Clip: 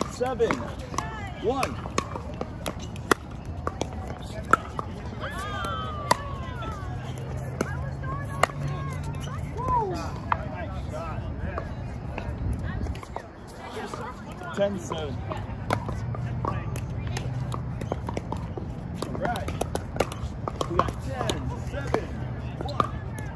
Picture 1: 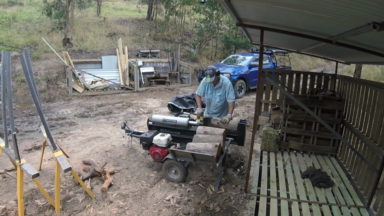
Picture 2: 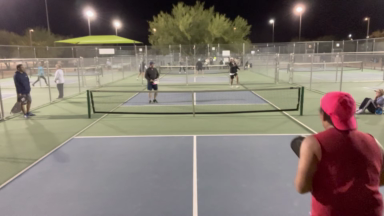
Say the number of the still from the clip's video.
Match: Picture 2